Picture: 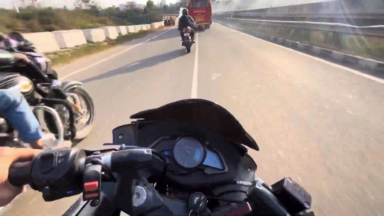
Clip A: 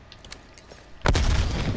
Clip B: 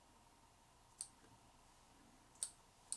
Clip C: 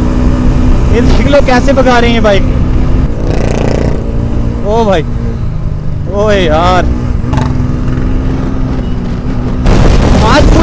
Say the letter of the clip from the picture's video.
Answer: C